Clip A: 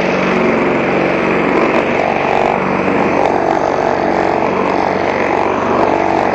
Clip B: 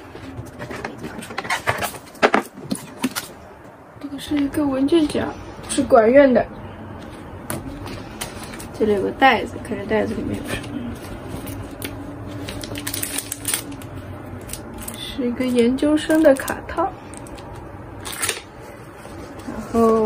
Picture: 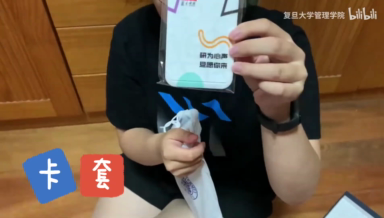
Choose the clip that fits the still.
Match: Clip B